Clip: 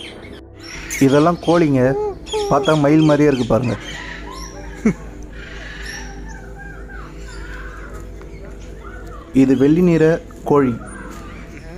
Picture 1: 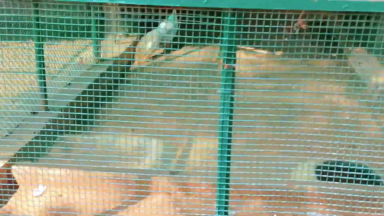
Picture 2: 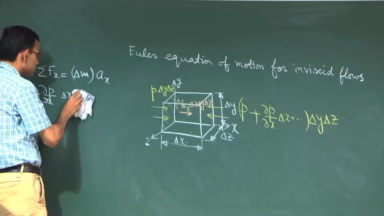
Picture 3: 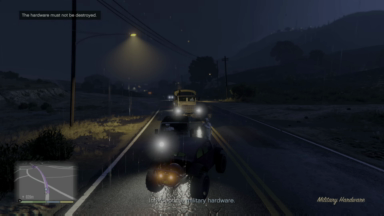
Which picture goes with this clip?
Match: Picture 1